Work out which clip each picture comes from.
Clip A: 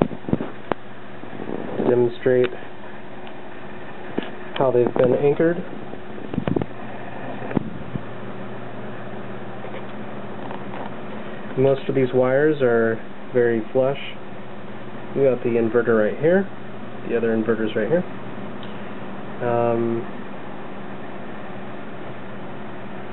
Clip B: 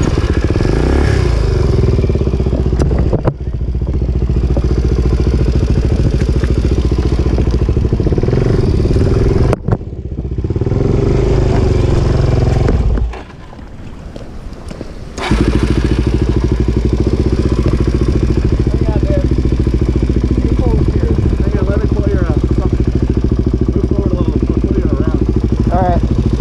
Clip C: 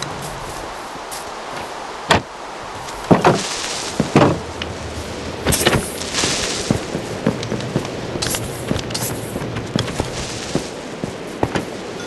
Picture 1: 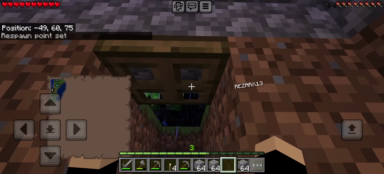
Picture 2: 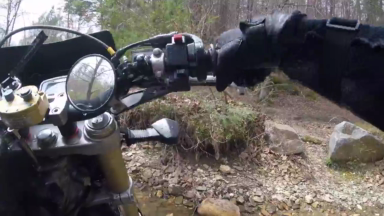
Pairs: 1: C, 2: B